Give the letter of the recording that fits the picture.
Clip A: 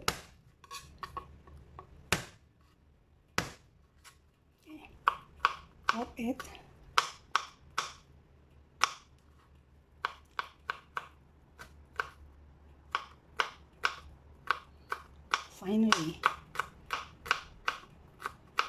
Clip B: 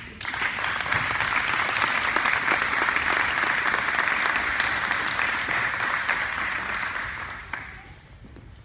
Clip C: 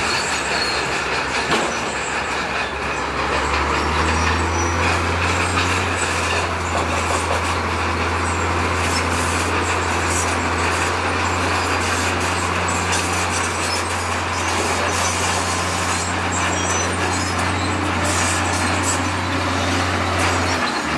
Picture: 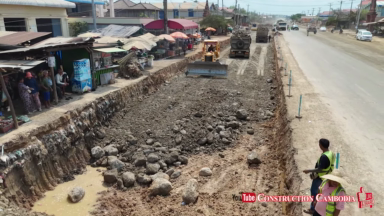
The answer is C